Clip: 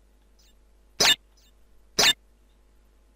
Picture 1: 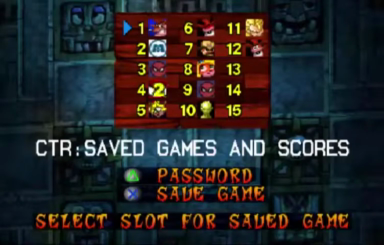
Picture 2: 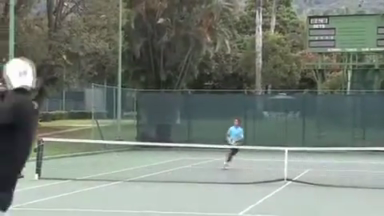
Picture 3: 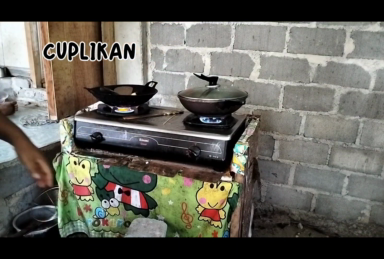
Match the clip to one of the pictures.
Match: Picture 1